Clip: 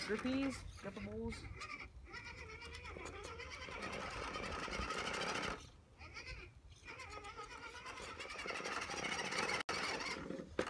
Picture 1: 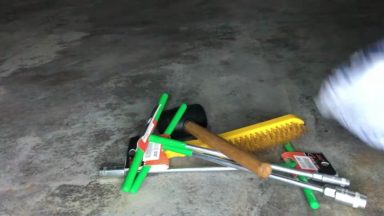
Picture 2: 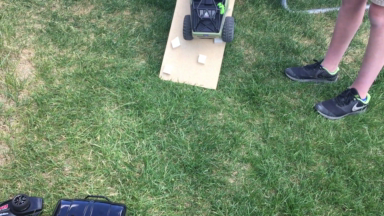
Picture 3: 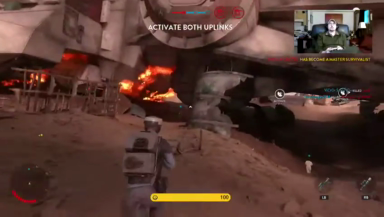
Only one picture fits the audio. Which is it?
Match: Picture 2